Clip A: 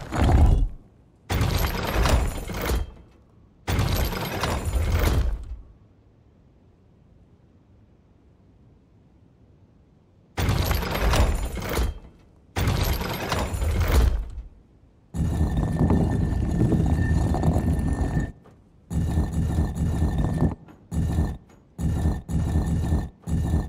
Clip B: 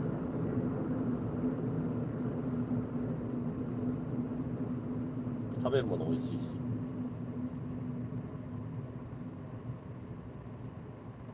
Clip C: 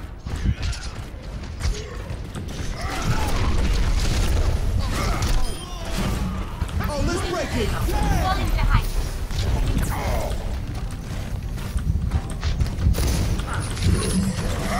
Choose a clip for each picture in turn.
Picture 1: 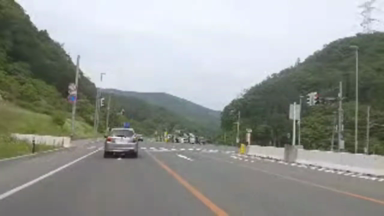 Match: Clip B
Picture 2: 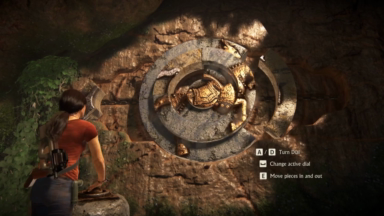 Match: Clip A